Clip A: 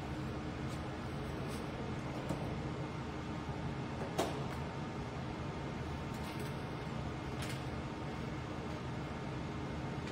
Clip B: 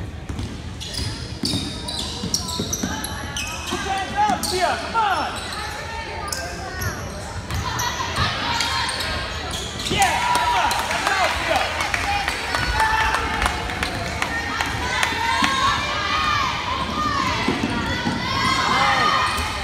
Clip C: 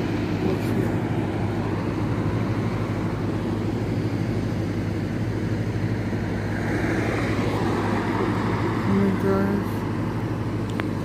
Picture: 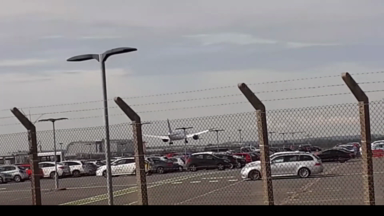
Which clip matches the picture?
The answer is C